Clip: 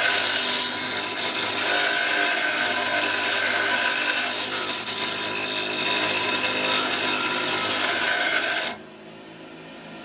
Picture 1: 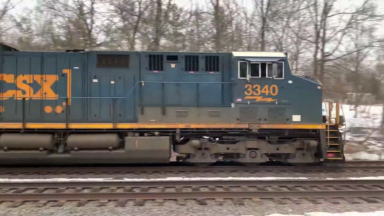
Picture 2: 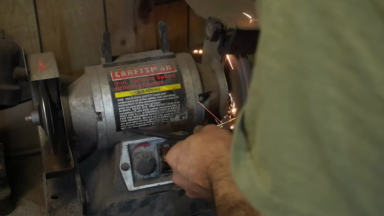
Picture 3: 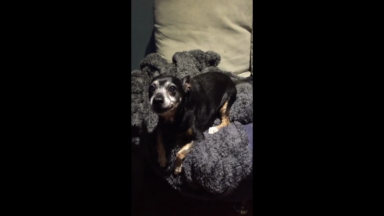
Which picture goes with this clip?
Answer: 2